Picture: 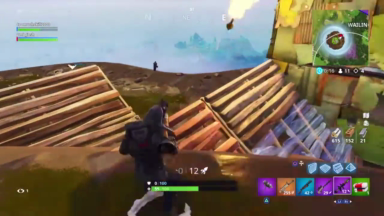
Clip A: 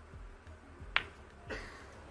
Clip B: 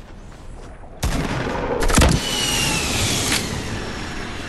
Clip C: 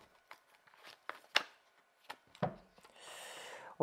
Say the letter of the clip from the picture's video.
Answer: B